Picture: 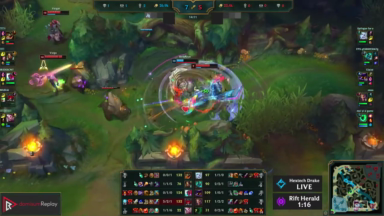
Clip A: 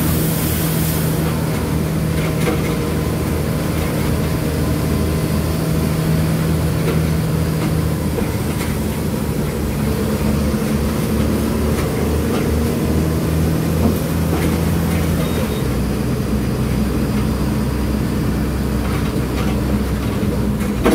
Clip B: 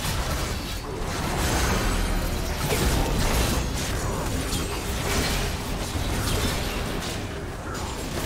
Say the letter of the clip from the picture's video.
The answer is B